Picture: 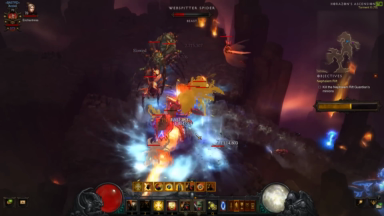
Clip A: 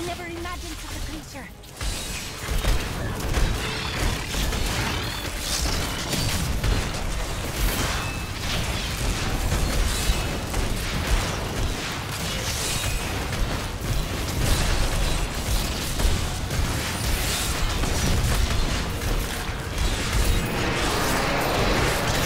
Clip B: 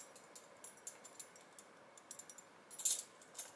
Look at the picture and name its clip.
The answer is A